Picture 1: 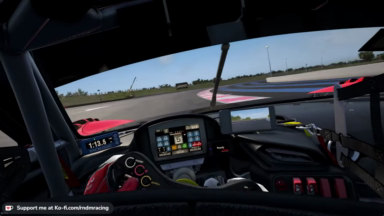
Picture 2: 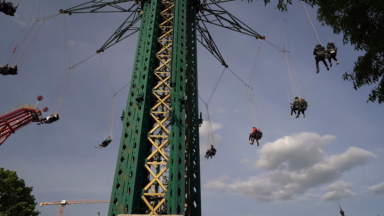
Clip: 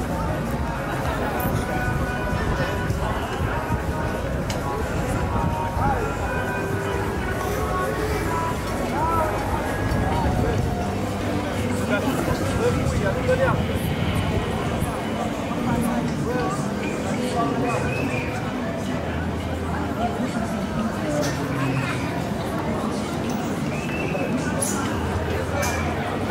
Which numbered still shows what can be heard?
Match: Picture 2